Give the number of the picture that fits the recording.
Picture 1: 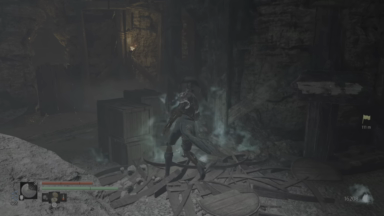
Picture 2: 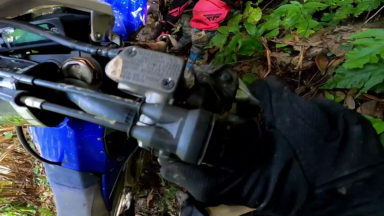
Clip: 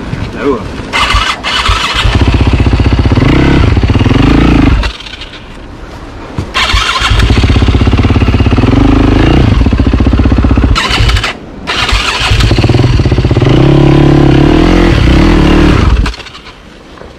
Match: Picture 2